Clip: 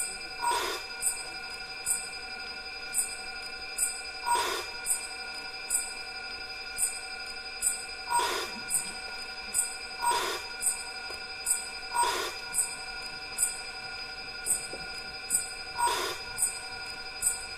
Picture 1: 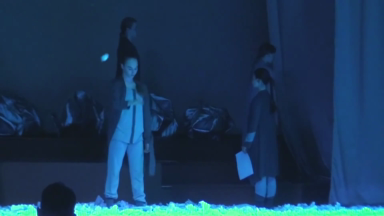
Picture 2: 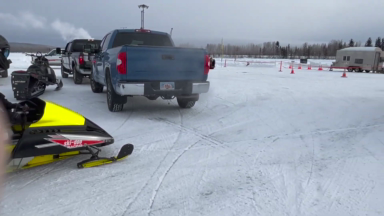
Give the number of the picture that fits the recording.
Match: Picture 1